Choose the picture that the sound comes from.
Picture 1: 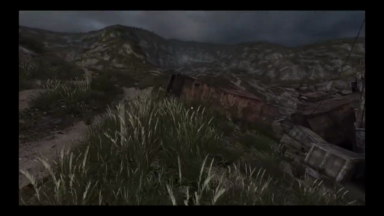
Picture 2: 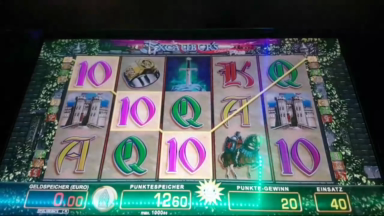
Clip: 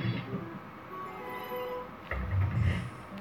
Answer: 2